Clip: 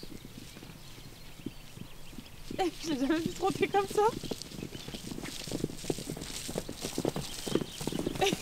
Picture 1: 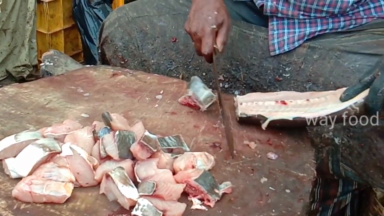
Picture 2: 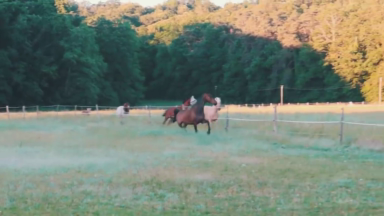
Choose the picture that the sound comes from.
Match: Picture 2